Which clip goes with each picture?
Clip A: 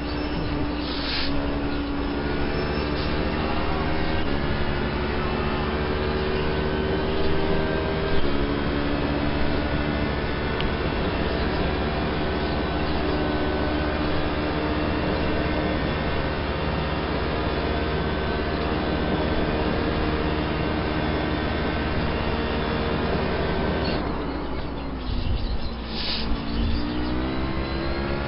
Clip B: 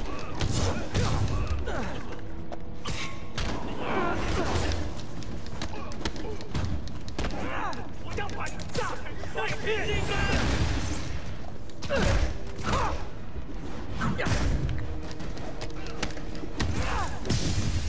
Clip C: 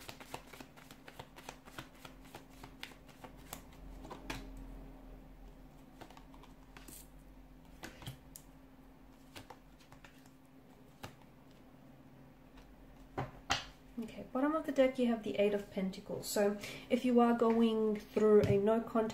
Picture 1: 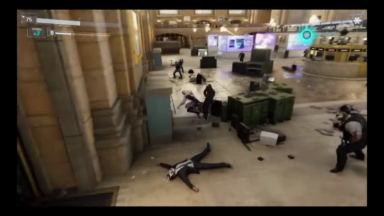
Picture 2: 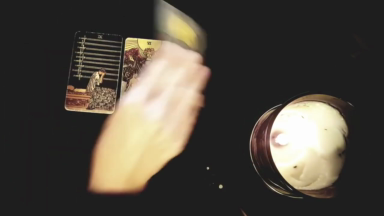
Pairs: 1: B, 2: C